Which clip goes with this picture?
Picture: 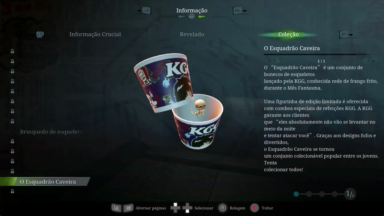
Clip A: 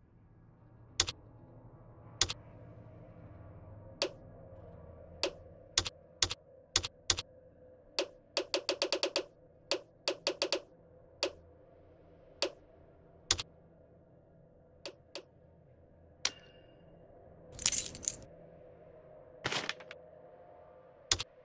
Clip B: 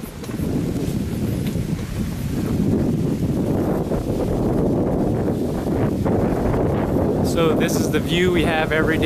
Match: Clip A